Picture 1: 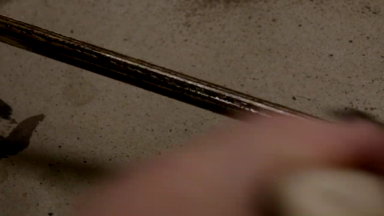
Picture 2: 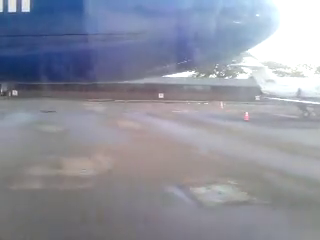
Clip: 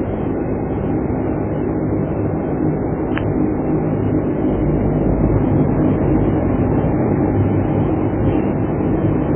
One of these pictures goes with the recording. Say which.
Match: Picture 2